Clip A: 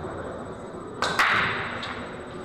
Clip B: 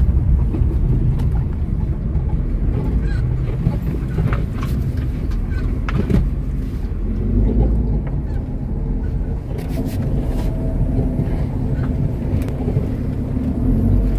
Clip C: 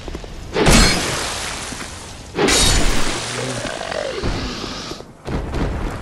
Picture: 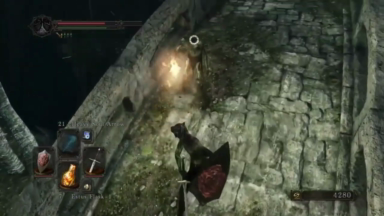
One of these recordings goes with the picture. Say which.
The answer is C